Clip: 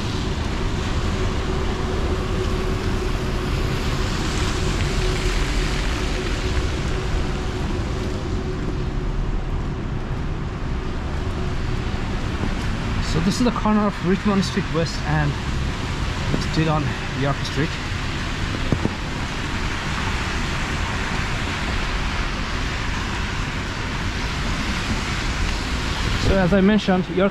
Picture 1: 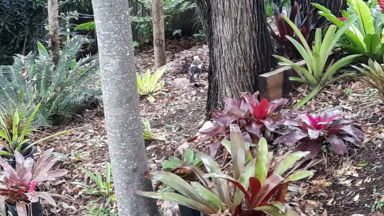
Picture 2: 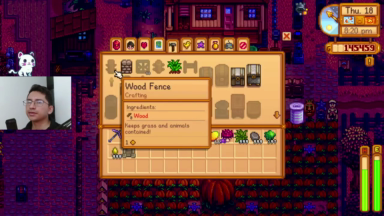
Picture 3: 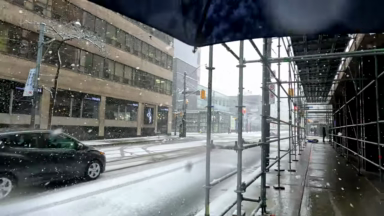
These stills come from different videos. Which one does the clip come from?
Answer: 3